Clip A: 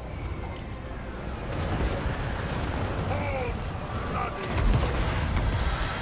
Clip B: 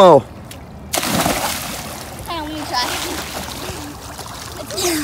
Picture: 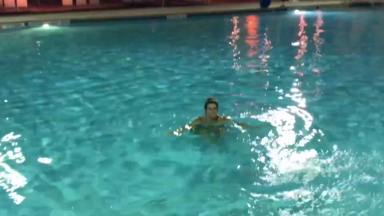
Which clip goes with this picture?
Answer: B